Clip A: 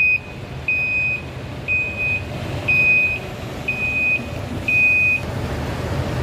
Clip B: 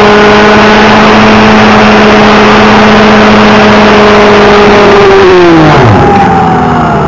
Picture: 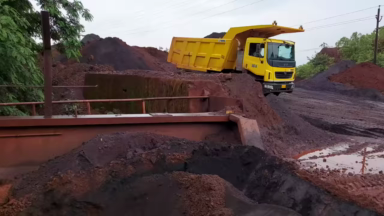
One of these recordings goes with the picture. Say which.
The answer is A